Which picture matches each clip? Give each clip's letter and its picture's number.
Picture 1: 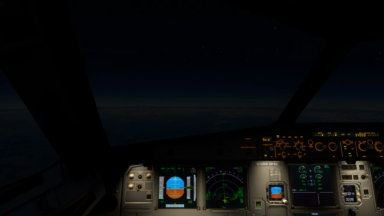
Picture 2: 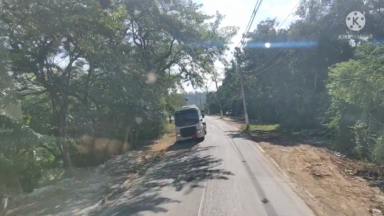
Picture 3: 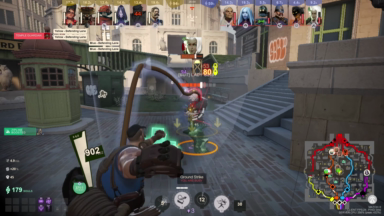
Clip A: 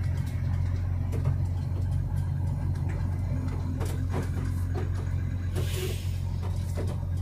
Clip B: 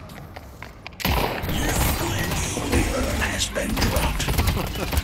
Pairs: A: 2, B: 3